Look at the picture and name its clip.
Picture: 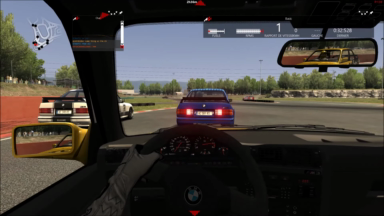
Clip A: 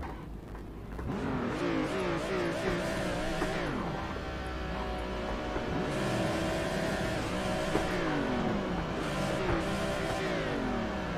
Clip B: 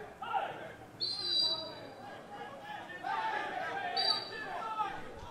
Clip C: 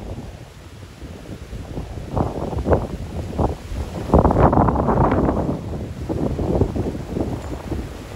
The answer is A